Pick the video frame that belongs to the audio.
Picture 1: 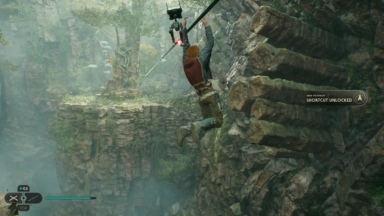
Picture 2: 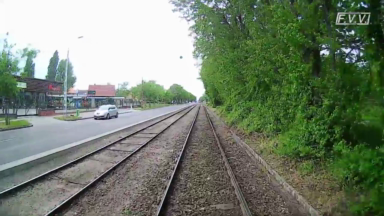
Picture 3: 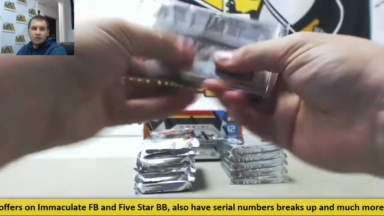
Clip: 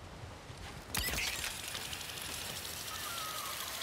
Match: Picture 1